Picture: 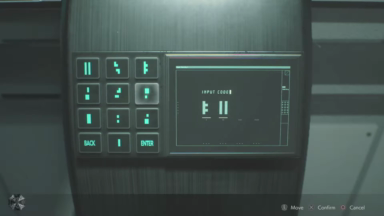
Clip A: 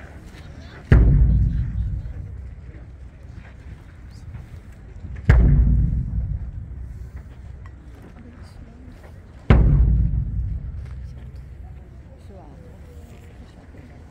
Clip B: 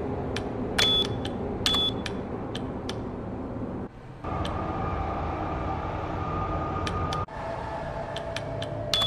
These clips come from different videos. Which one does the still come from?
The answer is B